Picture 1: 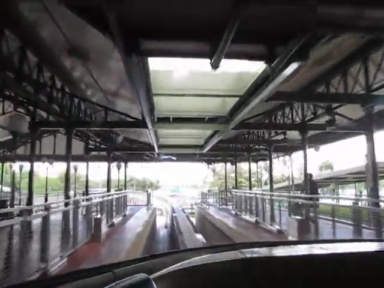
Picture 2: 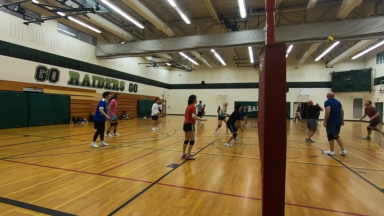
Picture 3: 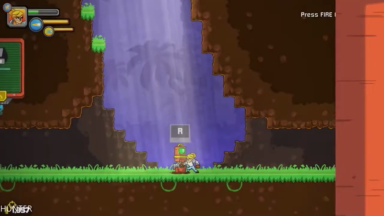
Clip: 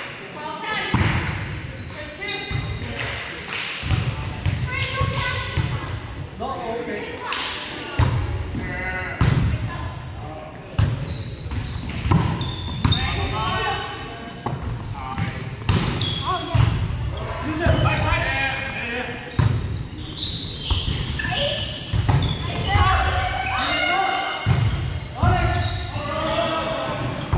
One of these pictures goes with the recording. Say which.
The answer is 2